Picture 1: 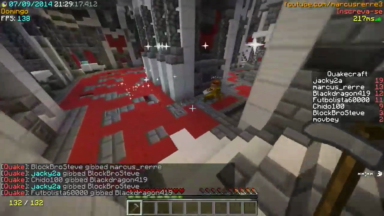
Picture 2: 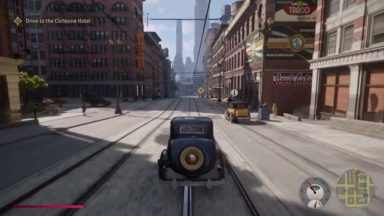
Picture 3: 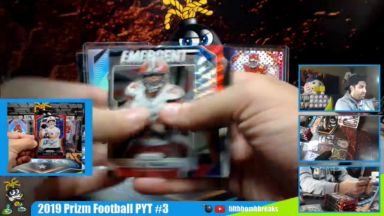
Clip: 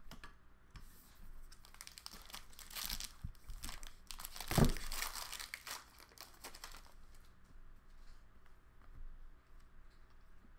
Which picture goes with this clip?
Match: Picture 3